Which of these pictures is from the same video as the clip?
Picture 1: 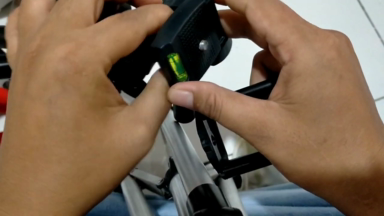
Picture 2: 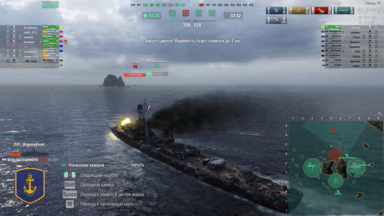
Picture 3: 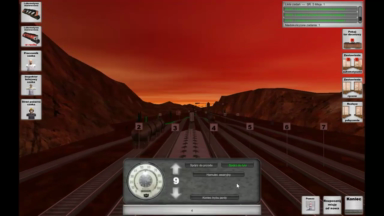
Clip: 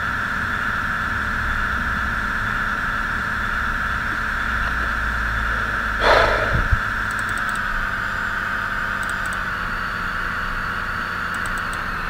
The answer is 3